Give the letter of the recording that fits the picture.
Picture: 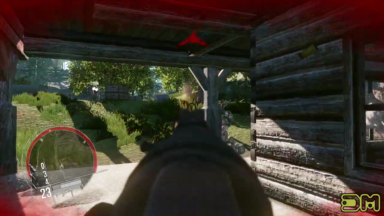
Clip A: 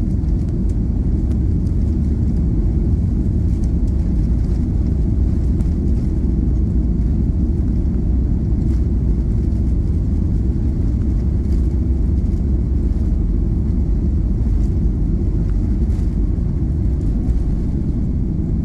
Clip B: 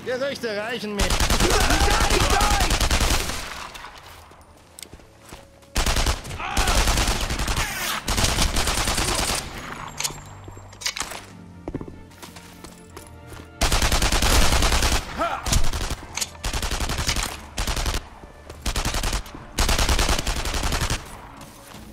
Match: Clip B